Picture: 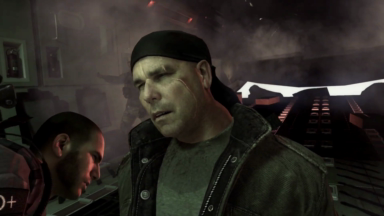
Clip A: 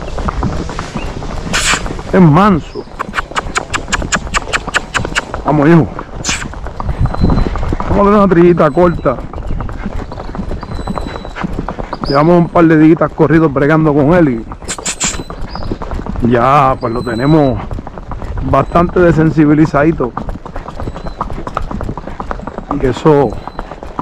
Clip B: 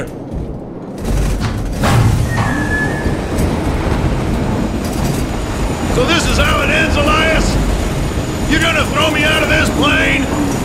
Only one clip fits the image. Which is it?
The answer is B